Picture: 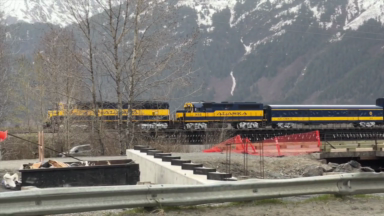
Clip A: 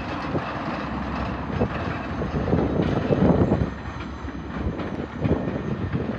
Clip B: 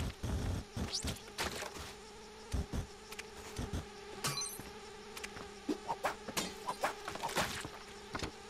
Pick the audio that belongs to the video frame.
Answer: A